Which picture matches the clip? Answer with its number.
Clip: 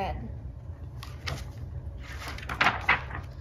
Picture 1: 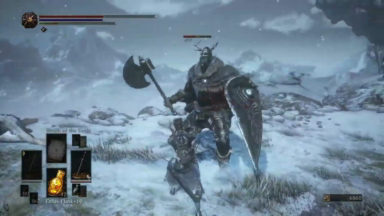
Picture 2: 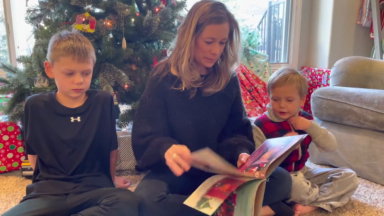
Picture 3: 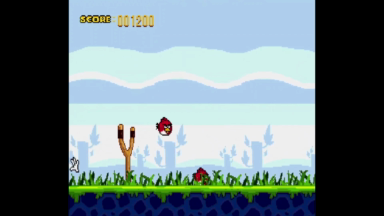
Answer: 2